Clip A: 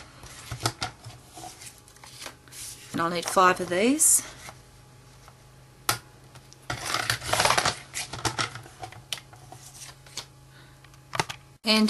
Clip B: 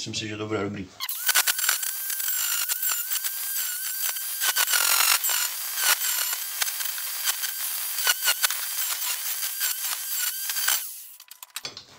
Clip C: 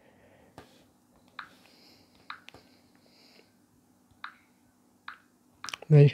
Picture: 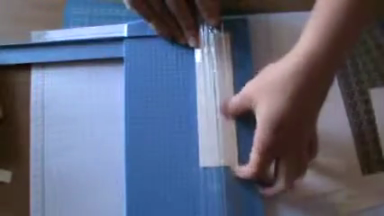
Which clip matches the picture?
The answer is A